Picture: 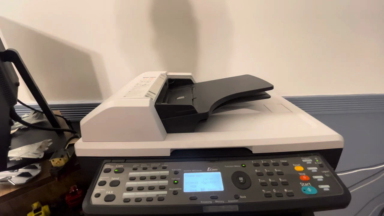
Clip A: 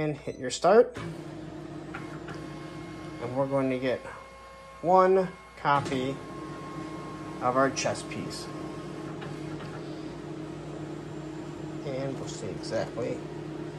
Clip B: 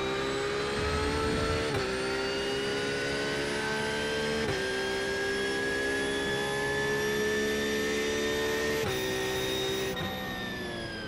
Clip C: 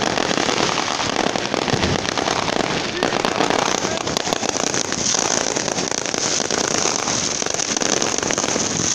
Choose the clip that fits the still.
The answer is A